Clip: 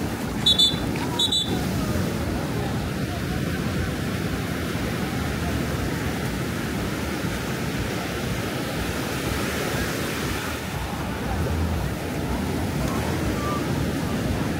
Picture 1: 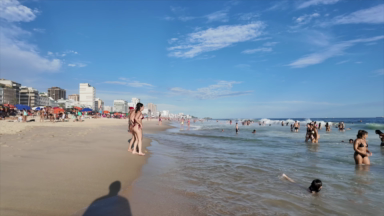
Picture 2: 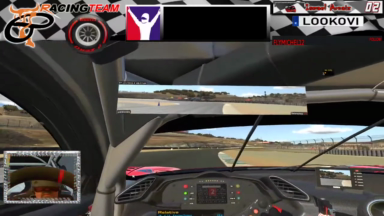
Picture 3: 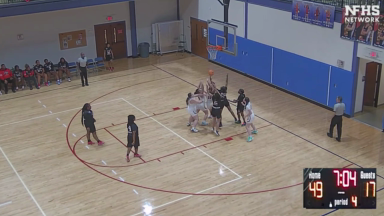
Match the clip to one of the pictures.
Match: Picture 1